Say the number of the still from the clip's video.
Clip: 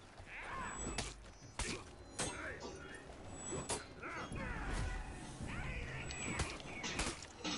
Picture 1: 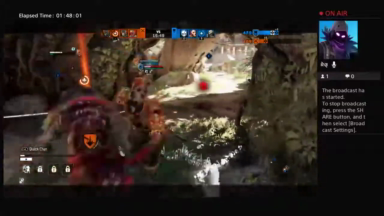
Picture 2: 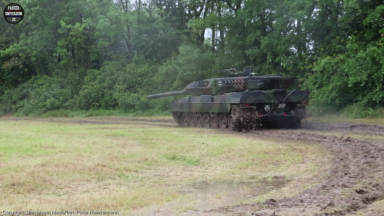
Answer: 1